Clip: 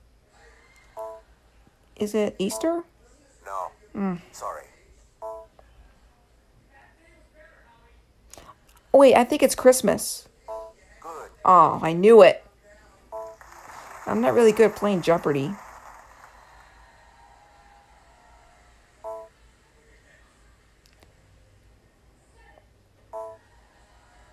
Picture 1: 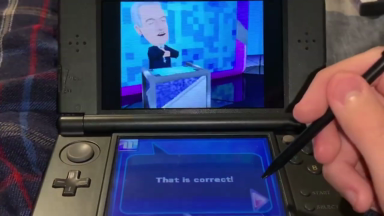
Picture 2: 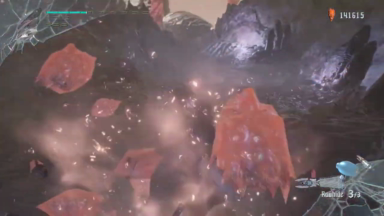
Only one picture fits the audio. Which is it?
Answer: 1